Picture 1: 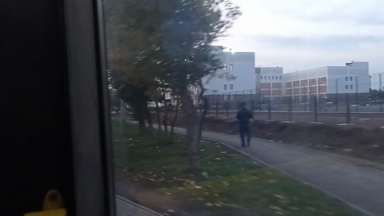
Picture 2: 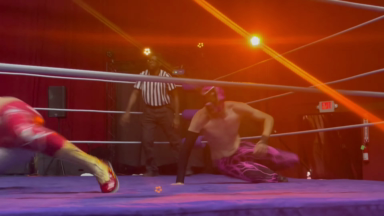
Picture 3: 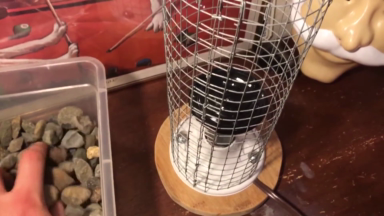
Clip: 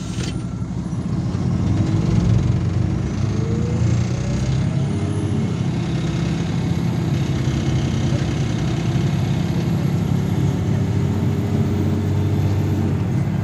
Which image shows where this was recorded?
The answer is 1